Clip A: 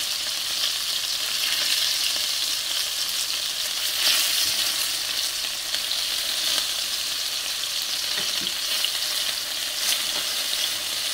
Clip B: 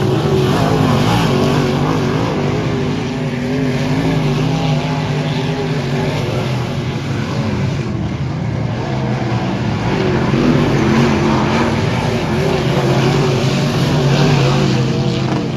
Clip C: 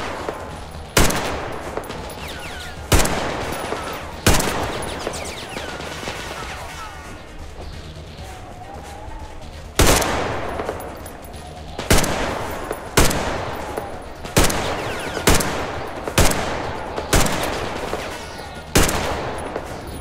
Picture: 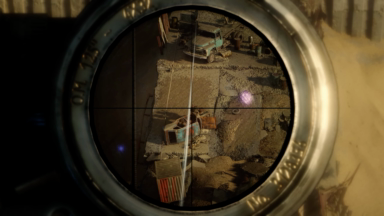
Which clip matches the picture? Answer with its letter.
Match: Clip C